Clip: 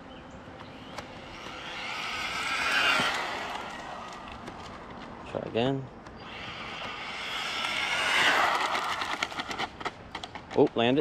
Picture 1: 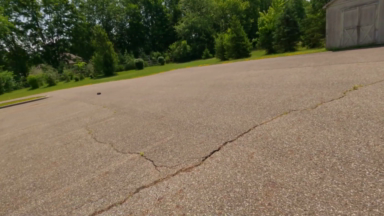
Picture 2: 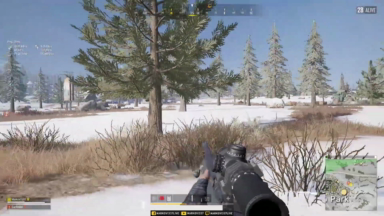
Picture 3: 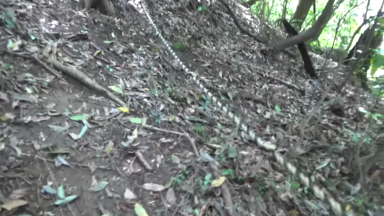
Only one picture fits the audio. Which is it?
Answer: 1